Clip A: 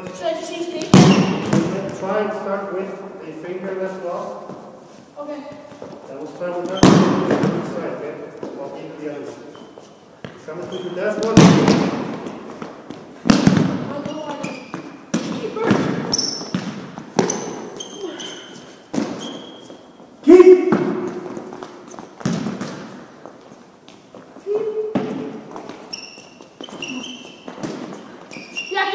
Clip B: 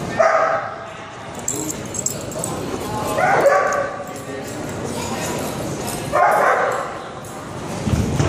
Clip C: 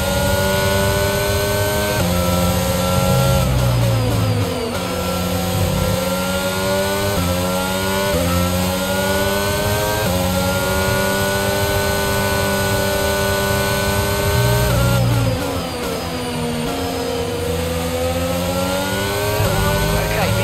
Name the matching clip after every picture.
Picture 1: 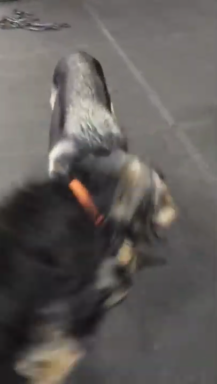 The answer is B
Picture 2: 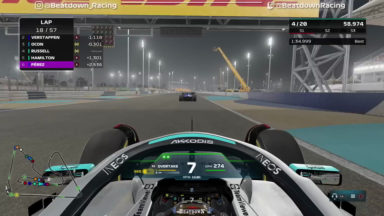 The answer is C